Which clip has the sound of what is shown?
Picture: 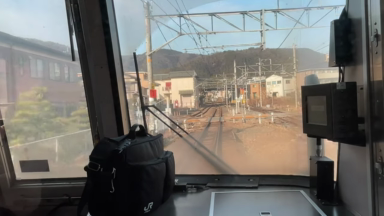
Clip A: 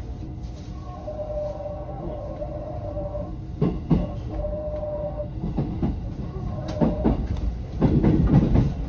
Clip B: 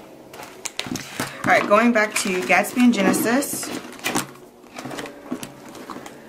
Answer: A